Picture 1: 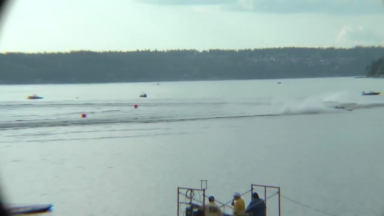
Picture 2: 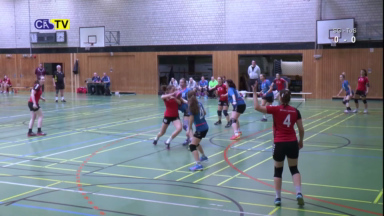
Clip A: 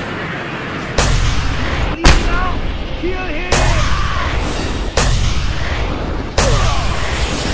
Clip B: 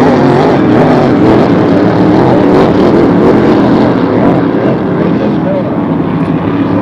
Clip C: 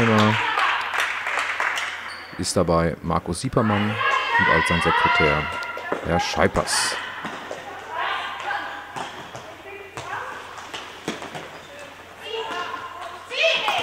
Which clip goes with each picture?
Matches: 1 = B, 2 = C